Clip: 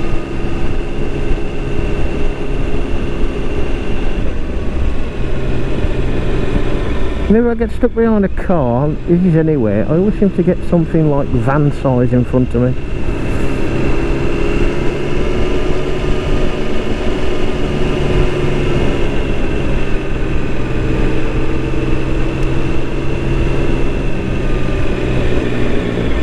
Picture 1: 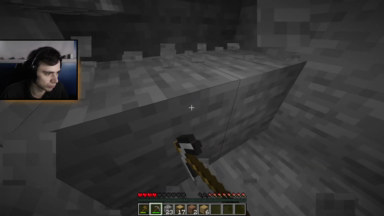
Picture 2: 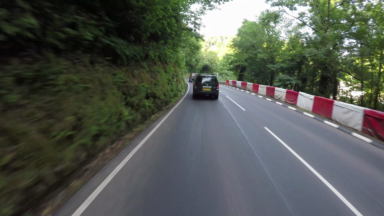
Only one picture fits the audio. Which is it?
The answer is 2